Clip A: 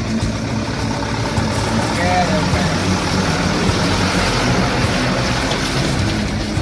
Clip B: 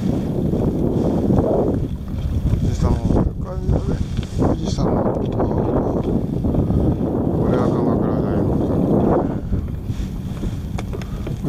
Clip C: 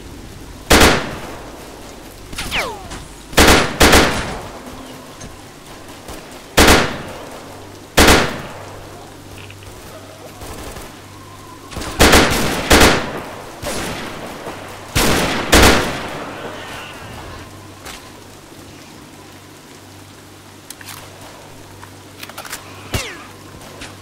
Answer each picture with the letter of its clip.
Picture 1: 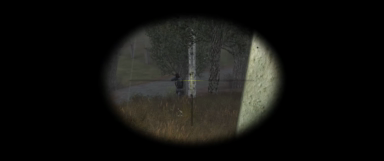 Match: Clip C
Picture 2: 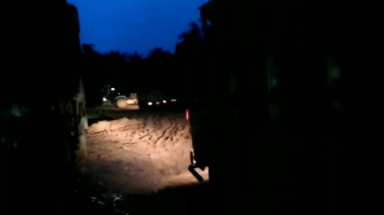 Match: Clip A